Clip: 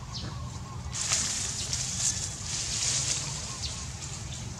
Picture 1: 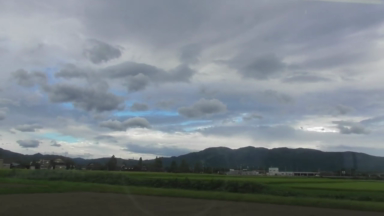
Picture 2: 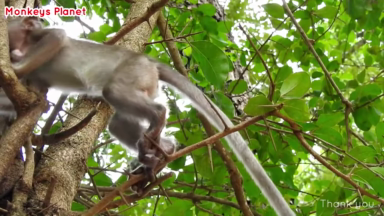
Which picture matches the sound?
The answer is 2